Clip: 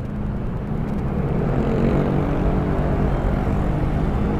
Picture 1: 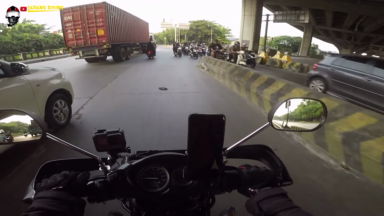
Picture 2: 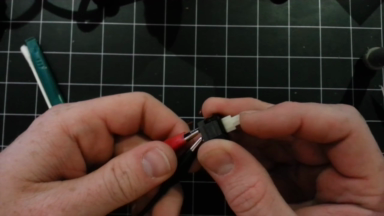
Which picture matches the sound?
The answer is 1